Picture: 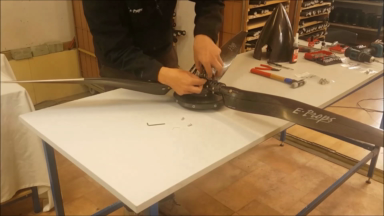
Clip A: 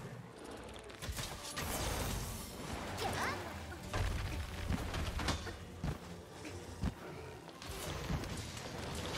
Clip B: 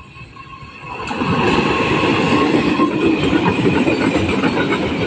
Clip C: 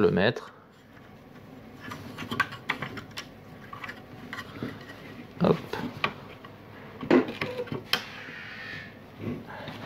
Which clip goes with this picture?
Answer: C